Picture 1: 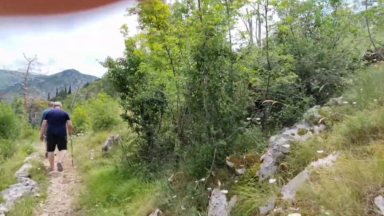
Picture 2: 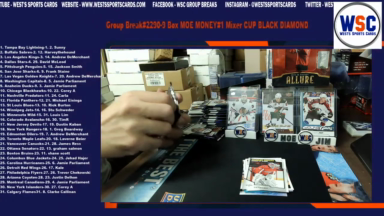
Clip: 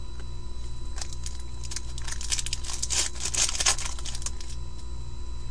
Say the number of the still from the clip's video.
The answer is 2